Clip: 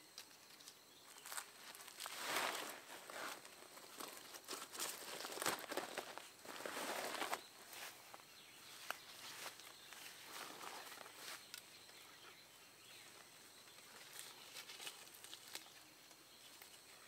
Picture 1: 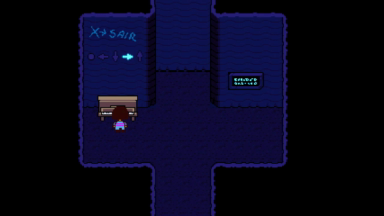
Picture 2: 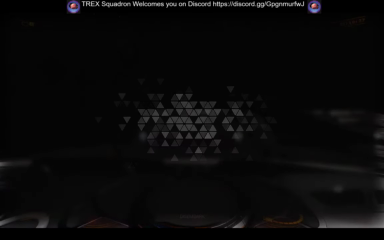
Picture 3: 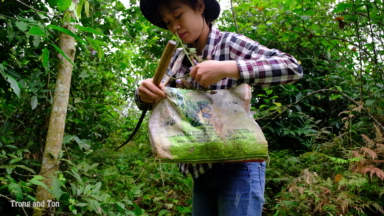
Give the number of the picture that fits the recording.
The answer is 3